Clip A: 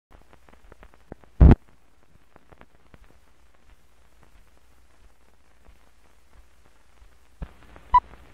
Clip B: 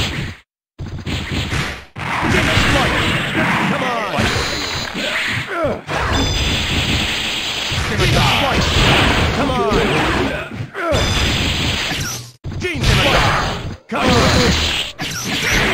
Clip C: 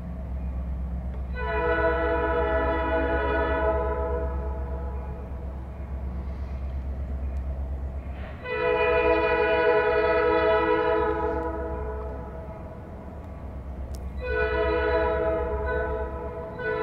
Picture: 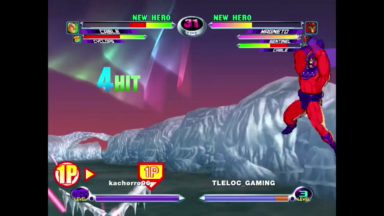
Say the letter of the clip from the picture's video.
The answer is B